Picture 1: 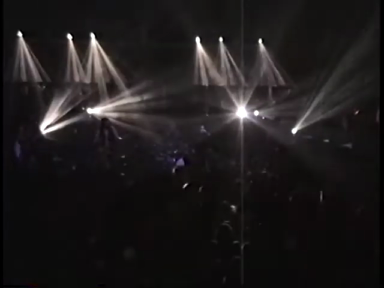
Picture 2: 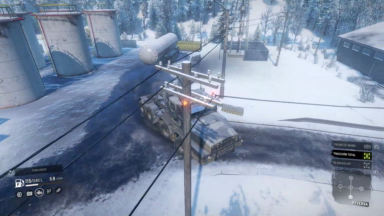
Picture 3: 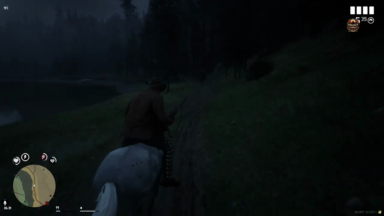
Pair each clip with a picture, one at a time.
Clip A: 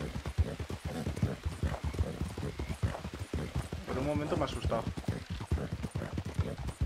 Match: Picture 3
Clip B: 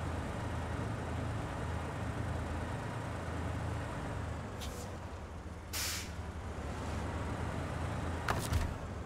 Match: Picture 2